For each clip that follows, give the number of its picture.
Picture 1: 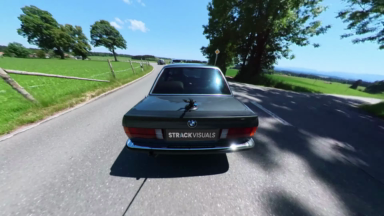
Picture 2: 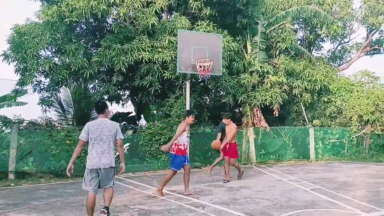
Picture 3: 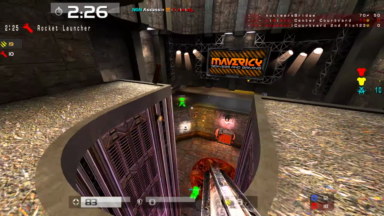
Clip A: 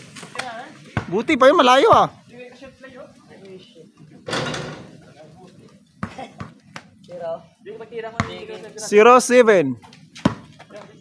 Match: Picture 2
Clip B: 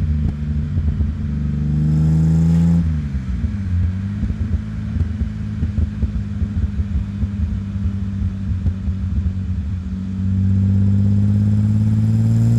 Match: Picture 1